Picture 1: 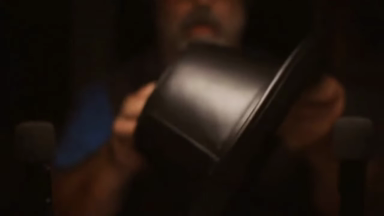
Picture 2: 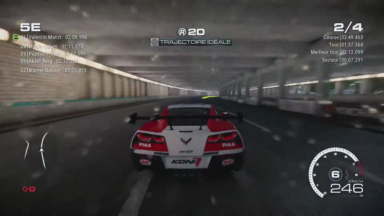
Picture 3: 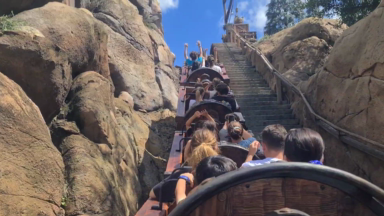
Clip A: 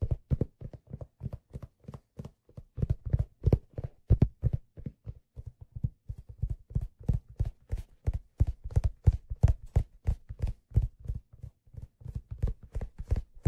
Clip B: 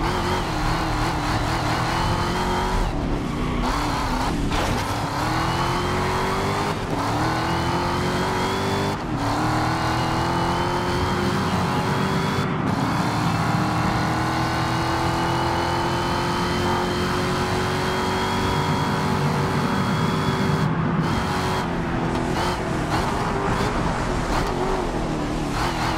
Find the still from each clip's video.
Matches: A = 1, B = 2